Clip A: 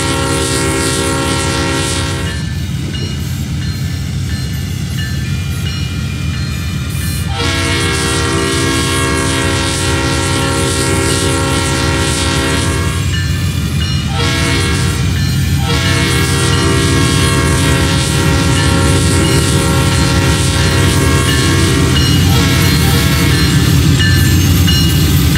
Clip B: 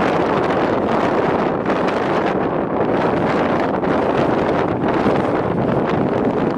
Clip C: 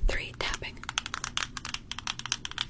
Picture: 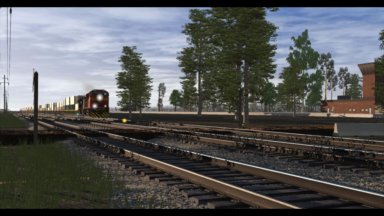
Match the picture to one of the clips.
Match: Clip A